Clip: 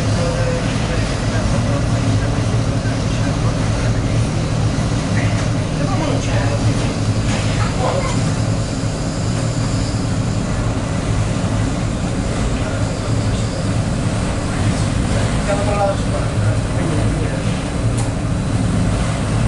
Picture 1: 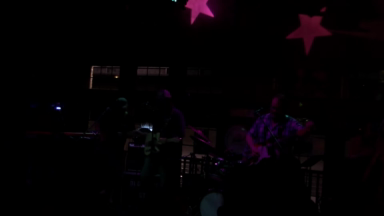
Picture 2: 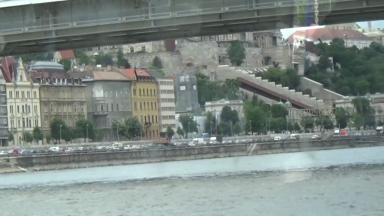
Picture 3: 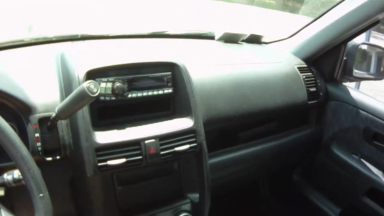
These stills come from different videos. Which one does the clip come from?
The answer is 2